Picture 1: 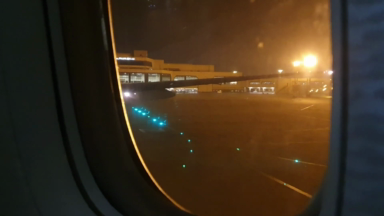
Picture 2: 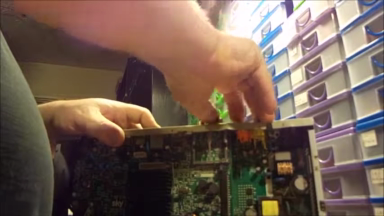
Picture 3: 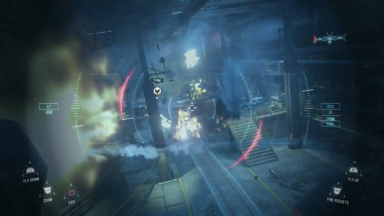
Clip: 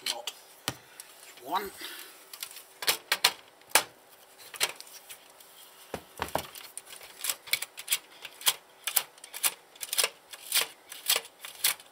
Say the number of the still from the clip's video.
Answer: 2